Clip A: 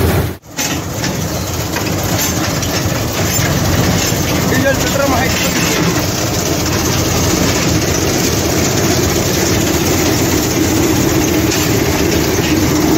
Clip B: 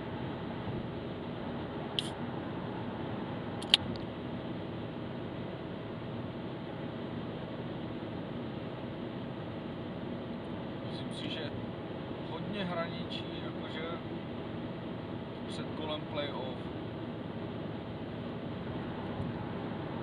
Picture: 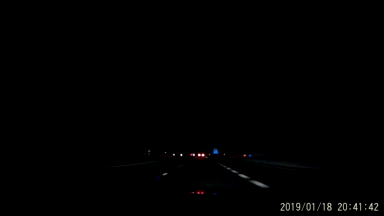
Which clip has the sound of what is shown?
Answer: B